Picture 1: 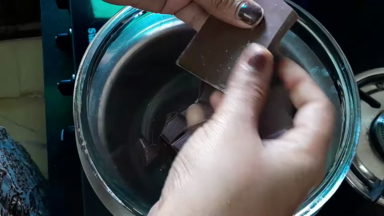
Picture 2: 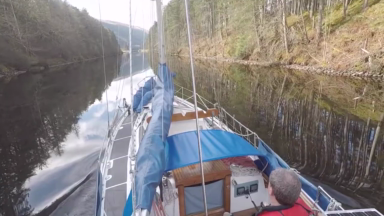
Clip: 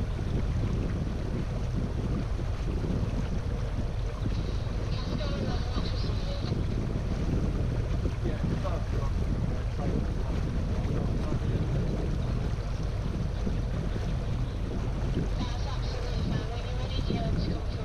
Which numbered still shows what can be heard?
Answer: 2